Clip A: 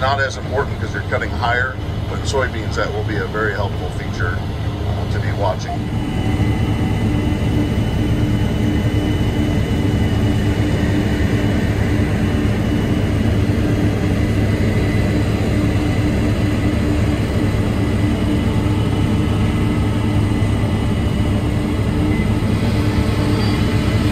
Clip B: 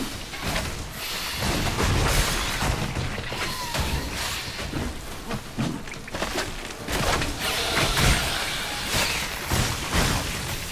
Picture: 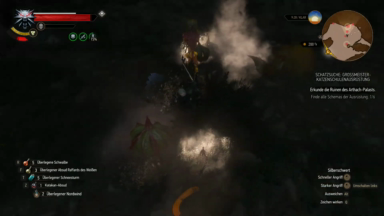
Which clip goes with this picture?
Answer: B